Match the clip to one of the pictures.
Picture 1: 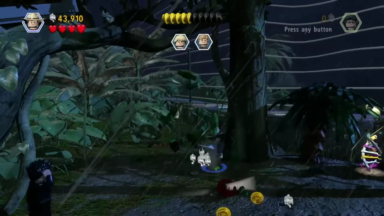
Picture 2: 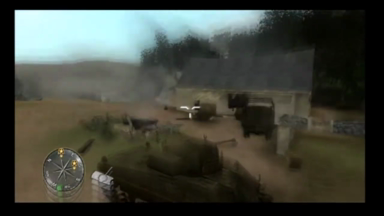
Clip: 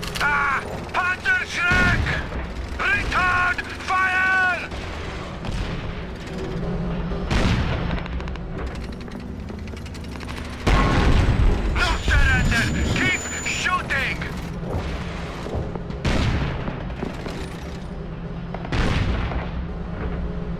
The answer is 2